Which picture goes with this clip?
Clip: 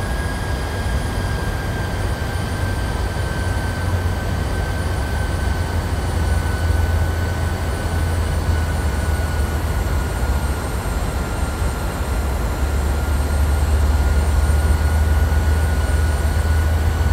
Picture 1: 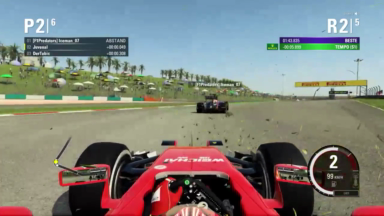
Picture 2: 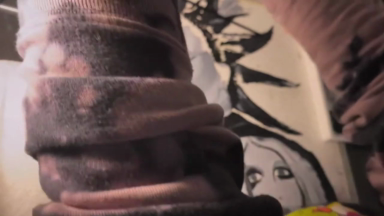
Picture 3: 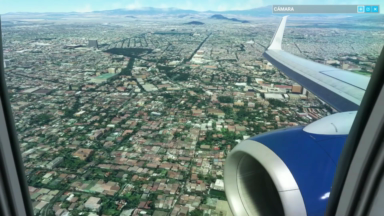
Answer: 3